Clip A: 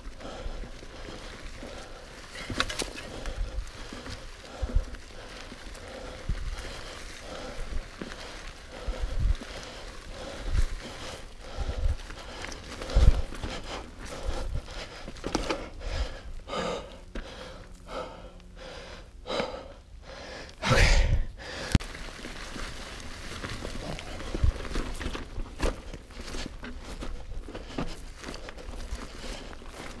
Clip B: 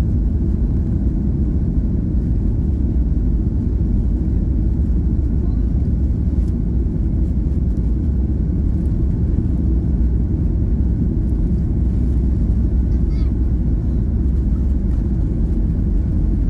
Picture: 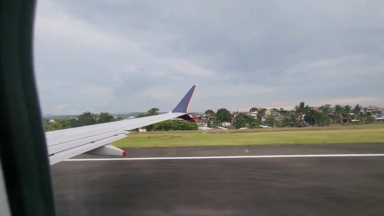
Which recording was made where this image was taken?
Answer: B